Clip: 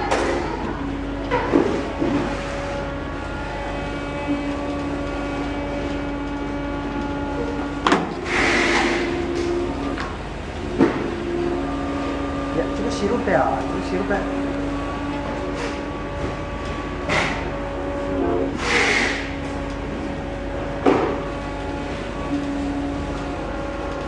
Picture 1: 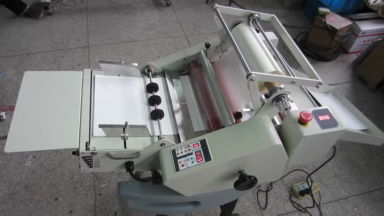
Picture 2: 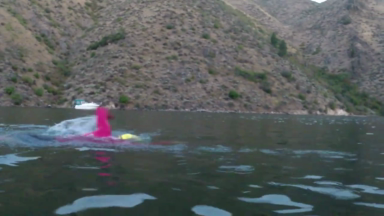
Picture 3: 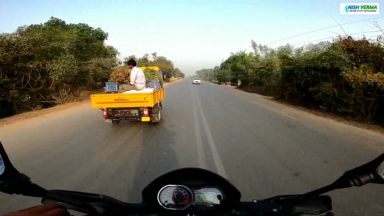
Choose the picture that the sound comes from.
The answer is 1